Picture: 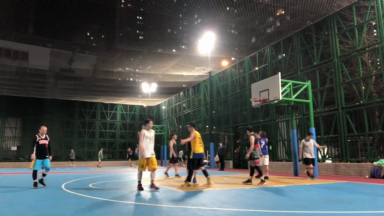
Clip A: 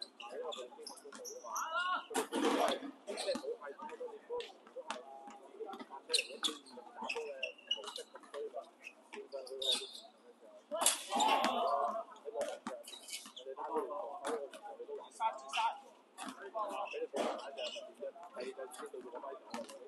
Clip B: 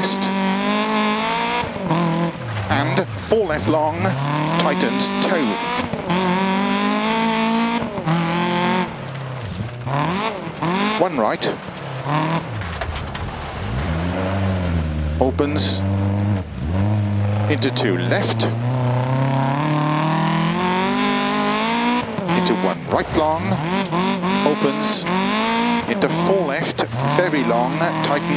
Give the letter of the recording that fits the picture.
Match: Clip A